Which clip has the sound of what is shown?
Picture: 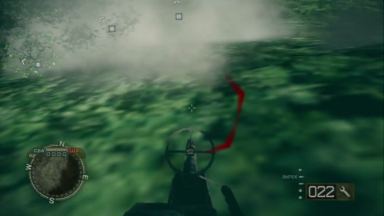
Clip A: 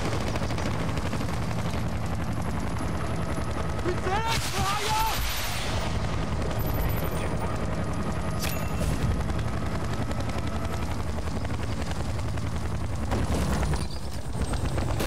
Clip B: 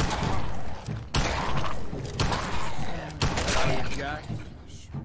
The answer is A